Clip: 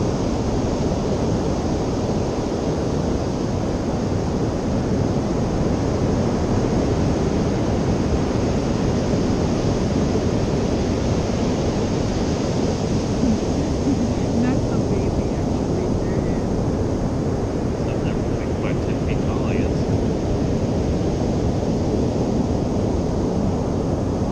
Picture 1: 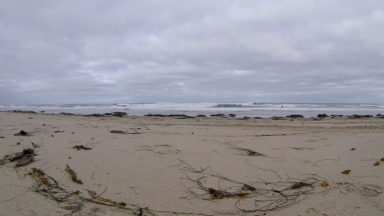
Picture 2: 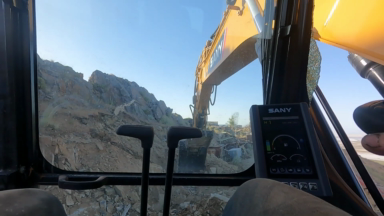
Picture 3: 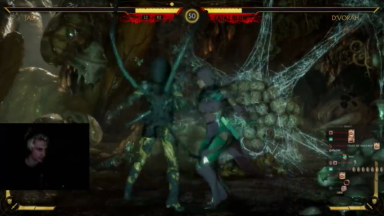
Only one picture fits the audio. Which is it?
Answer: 1